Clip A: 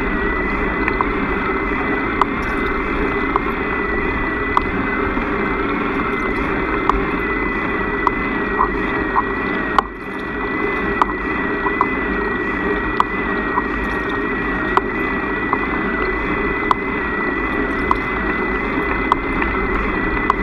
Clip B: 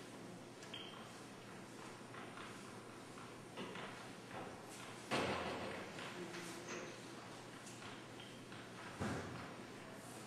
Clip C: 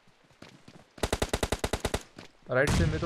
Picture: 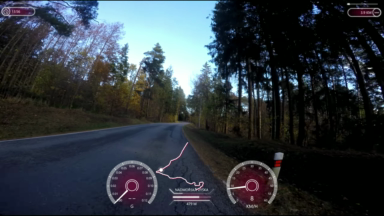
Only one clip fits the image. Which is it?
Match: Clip A